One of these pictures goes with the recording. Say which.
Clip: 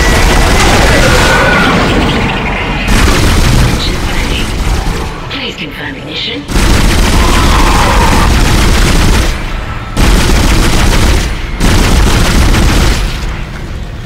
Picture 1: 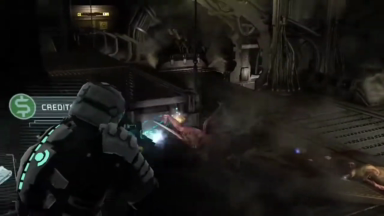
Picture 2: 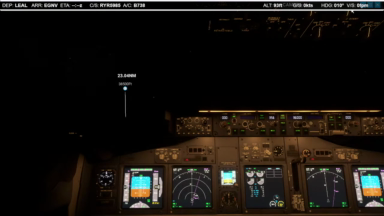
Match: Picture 1